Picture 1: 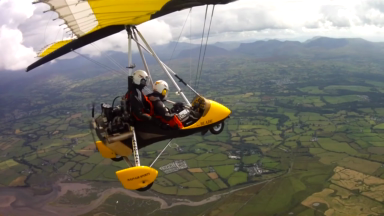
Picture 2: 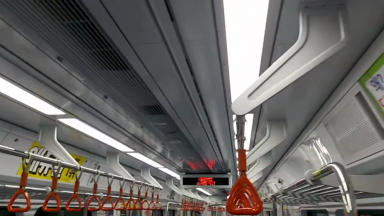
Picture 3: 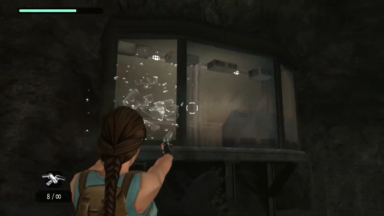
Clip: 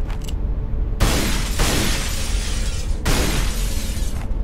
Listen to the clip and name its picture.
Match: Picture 3